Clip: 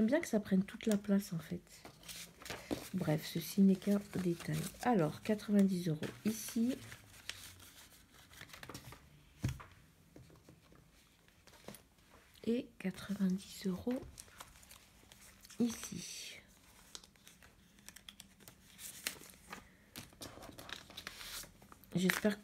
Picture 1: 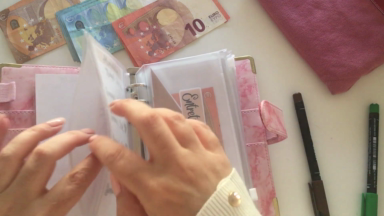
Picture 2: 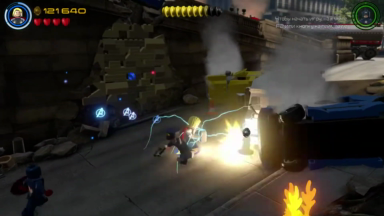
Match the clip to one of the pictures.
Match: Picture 1